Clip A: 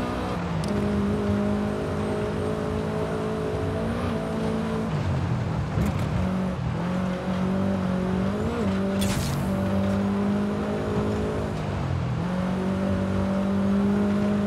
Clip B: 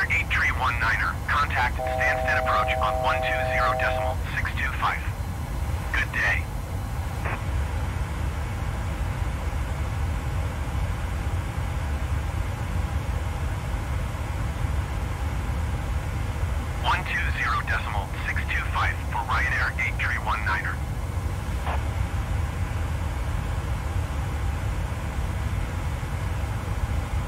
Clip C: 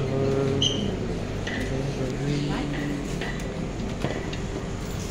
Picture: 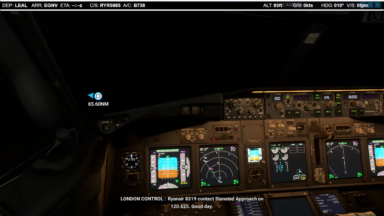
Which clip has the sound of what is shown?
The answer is B